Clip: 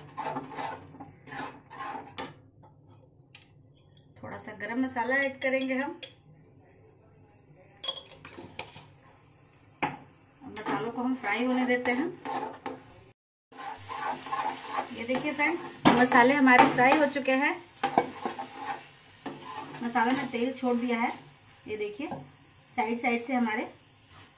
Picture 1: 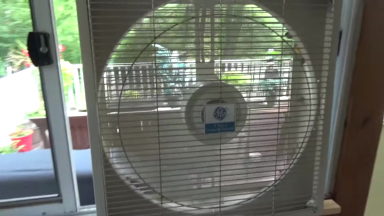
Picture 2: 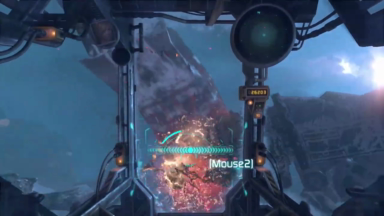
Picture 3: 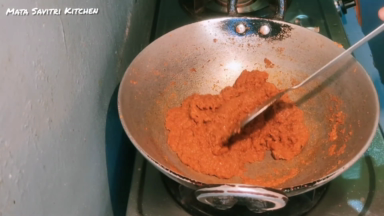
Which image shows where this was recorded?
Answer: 3